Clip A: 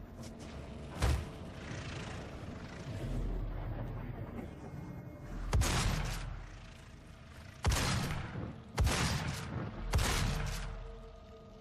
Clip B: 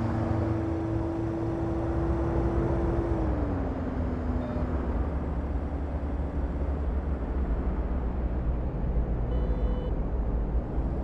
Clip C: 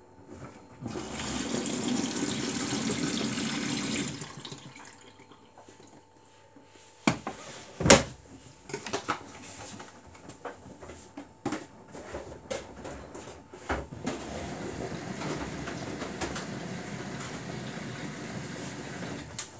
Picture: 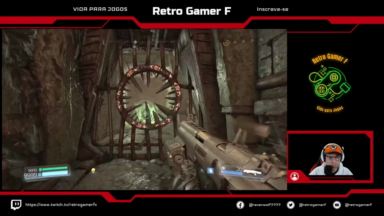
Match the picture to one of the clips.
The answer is A